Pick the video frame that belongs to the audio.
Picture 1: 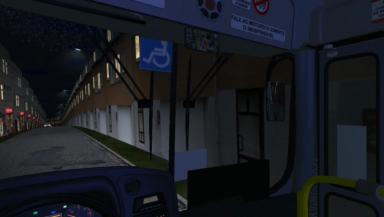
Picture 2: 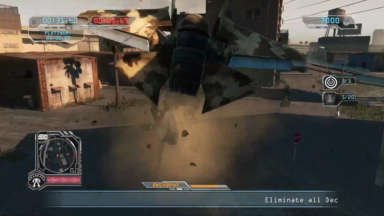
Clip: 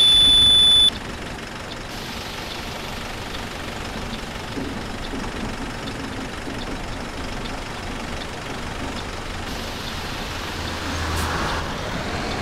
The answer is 1